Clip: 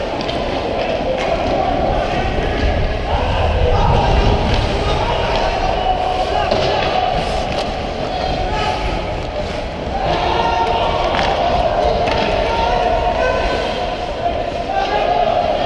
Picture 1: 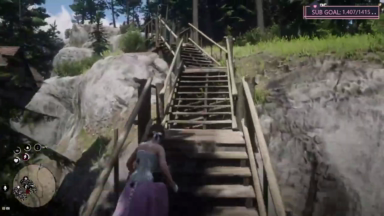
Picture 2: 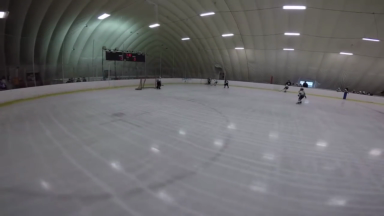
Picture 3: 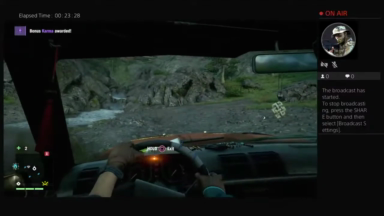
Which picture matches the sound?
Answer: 2